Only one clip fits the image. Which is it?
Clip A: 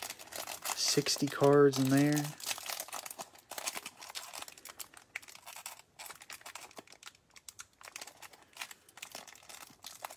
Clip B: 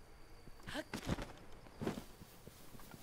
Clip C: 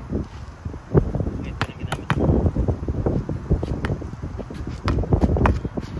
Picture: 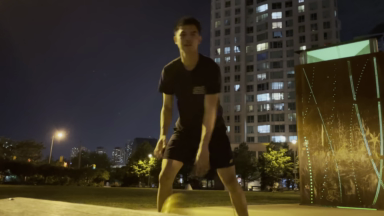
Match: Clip C